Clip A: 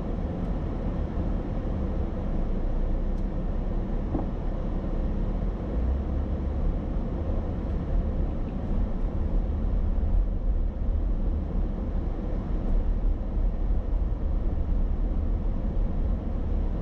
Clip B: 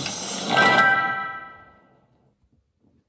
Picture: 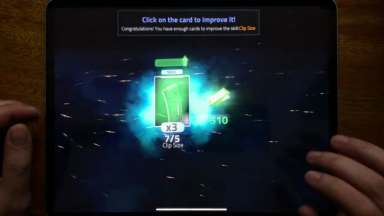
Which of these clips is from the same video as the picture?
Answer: B